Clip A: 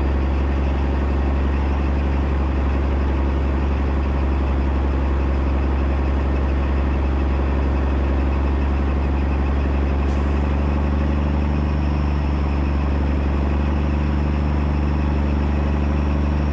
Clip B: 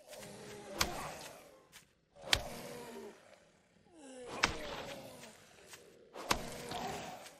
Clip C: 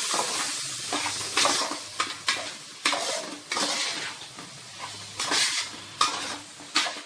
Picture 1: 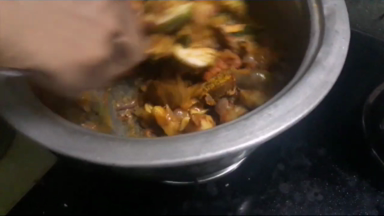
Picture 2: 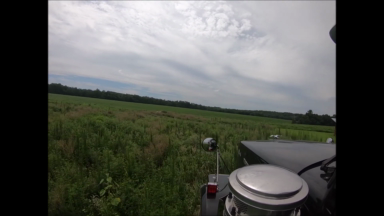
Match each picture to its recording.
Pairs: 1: C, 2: A